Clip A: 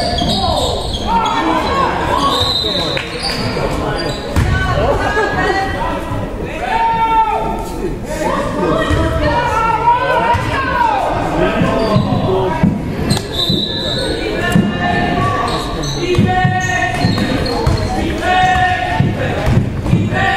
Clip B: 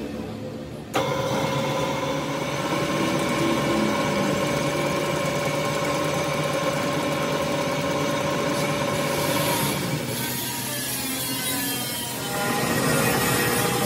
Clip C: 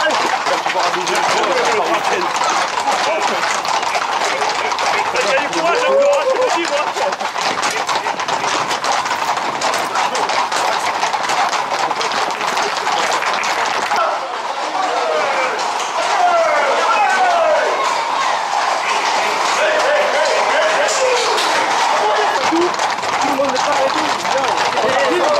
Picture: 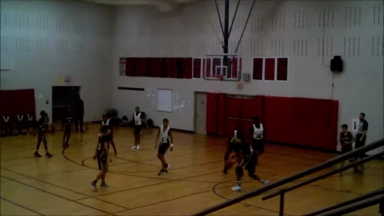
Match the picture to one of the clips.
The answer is A